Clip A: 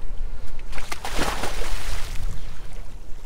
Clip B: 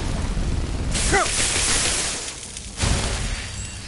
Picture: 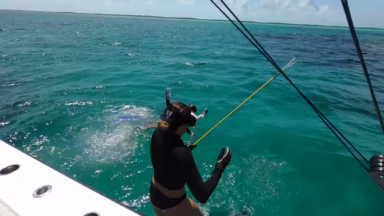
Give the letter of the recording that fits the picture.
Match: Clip A